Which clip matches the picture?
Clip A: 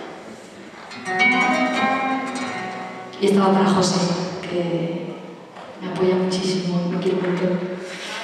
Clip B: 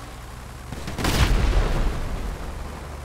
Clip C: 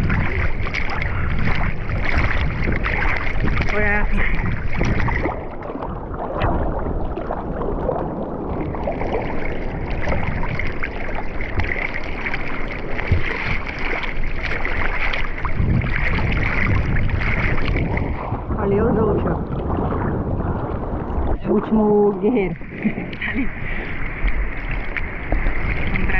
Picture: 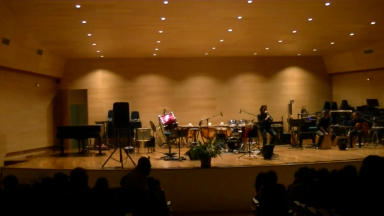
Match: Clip A